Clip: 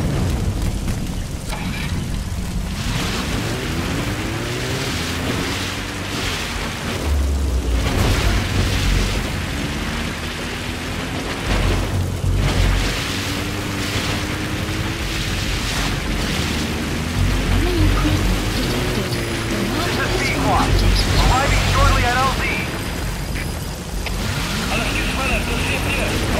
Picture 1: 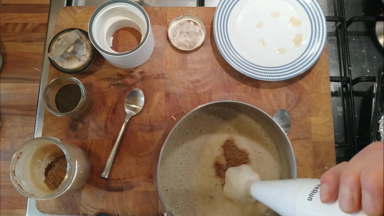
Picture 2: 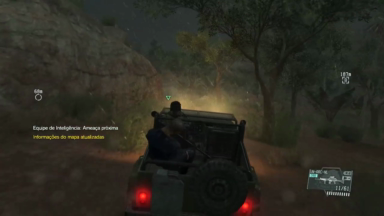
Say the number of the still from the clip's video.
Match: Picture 2